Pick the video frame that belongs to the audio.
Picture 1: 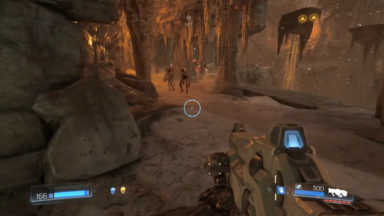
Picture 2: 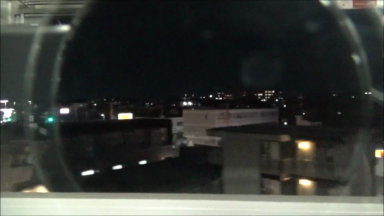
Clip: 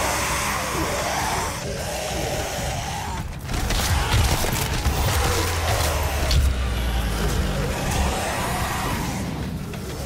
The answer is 1